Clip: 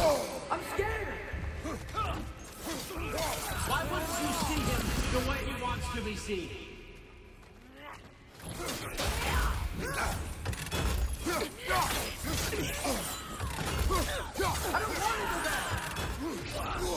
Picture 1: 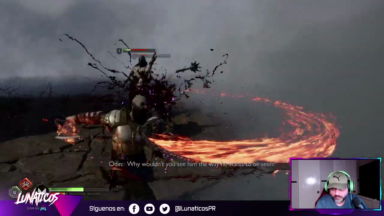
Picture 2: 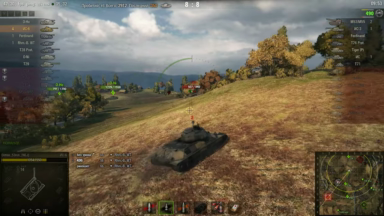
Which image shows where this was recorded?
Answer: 1